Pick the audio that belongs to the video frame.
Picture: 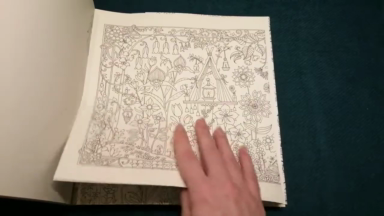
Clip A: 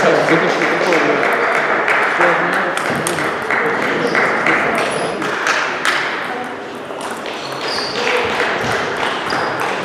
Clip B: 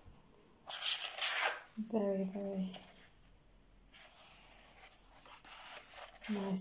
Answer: B